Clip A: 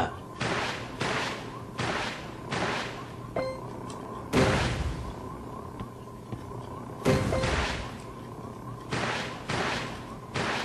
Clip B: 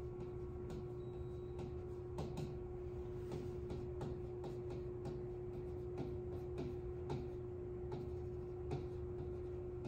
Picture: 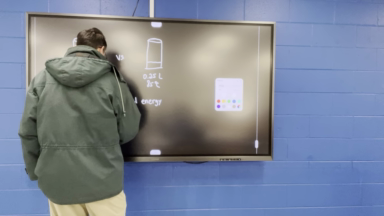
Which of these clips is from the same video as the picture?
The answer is B